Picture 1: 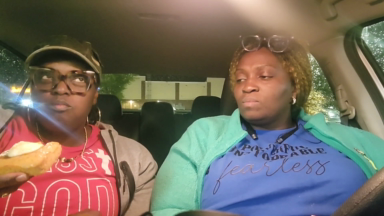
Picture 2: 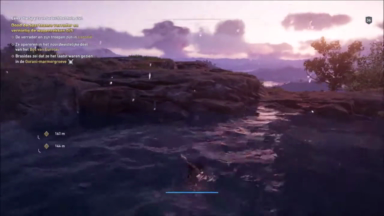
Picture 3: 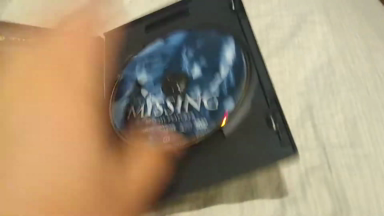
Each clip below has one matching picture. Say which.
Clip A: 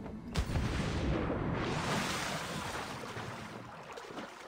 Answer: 2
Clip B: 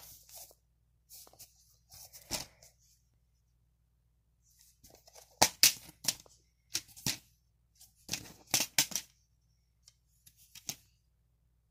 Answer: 3